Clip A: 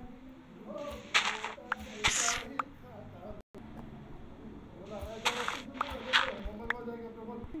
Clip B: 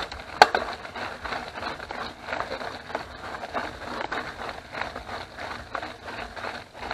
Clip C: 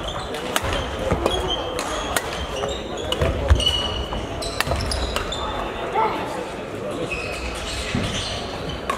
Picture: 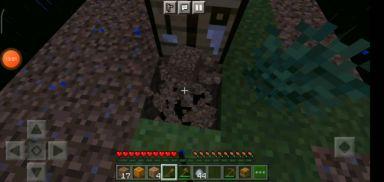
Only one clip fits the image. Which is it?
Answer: A